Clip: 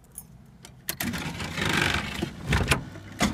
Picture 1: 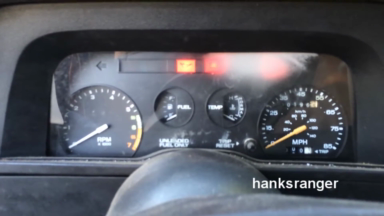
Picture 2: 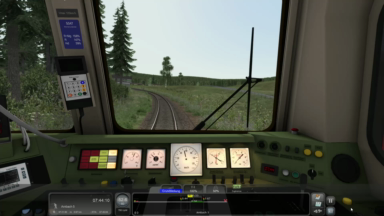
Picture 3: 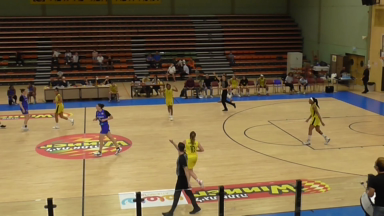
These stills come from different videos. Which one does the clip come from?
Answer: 1